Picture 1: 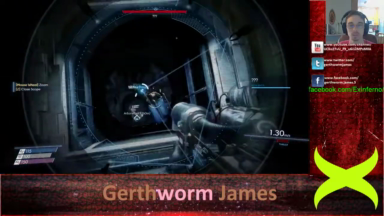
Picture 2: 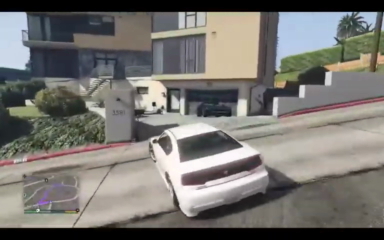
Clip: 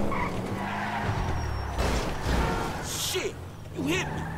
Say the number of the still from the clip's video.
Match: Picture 2